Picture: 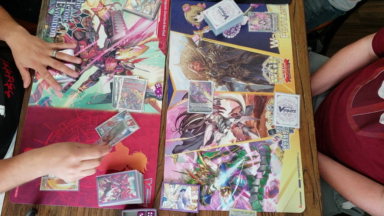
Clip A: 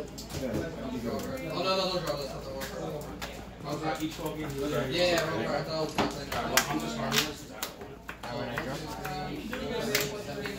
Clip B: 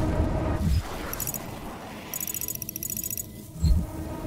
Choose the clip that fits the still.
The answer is A